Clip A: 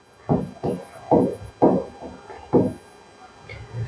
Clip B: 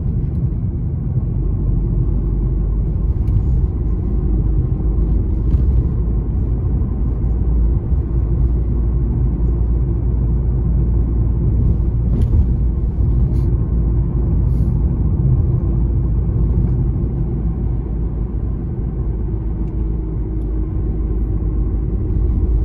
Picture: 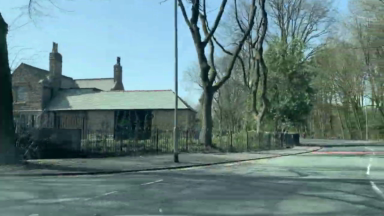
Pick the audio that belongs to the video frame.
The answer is B